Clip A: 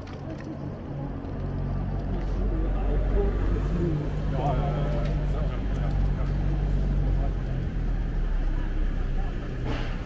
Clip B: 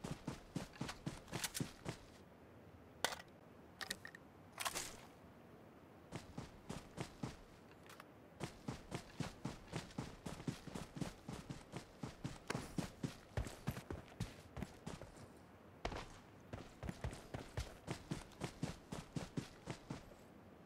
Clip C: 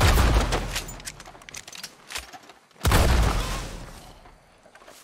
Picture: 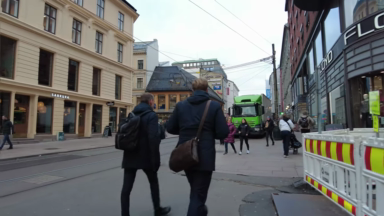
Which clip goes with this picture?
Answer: A